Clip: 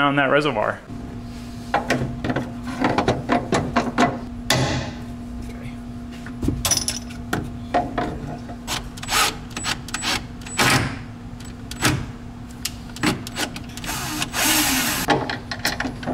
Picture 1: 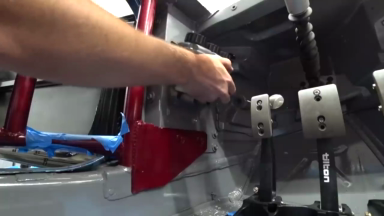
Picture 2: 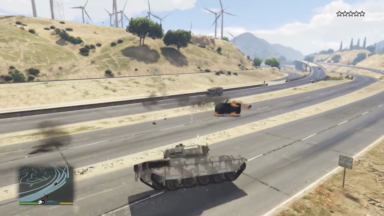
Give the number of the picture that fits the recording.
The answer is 1